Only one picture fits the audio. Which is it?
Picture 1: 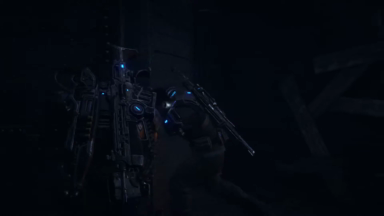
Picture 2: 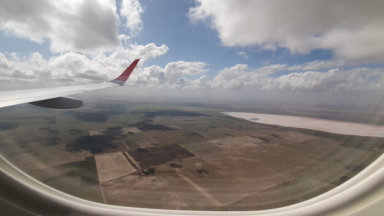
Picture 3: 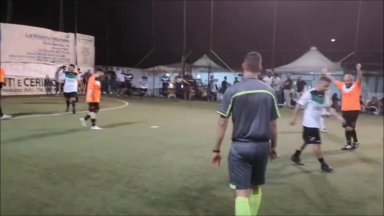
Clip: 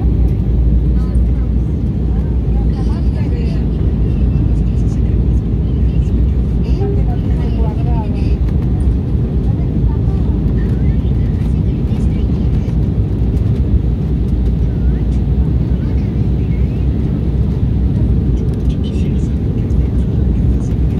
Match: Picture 2